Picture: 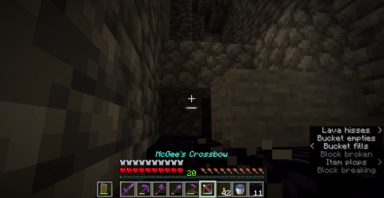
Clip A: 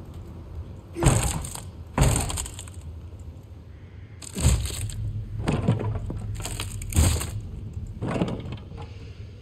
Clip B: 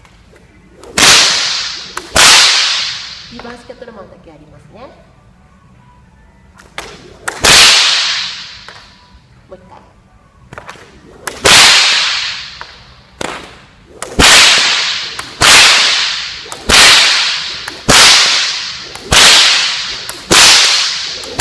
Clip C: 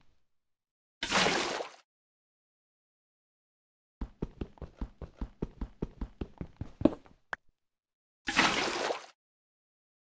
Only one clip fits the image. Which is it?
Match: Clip C